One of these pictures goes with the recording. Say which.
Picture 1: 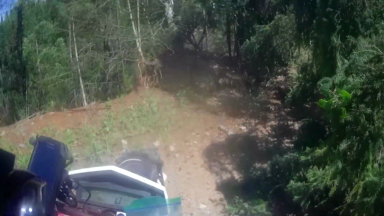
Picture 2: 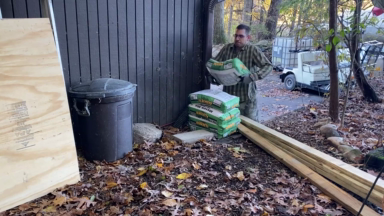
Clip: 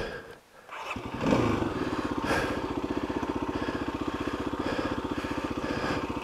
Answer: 1